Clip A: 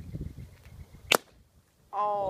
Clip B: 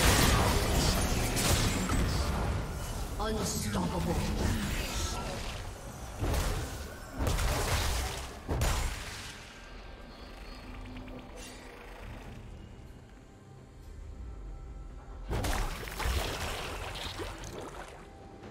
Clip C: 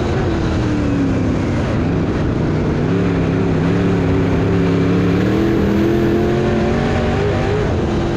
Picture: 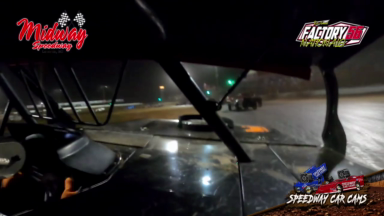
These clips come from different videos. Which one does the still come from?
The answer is C